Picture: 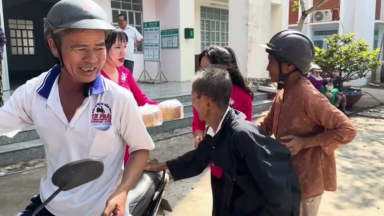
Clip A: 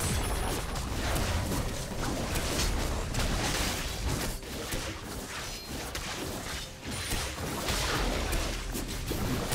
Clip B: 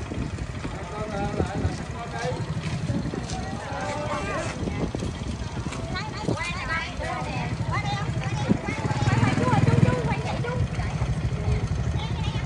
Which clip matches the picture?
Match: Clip B